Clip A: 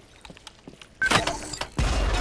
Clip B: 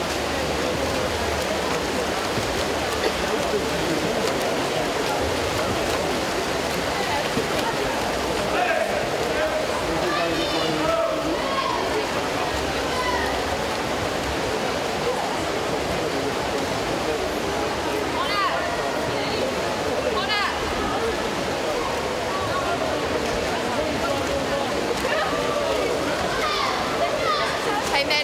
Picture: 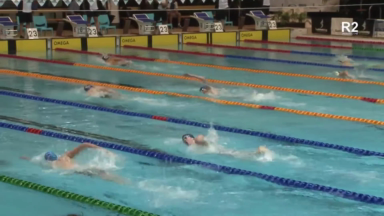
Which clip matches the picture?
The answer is B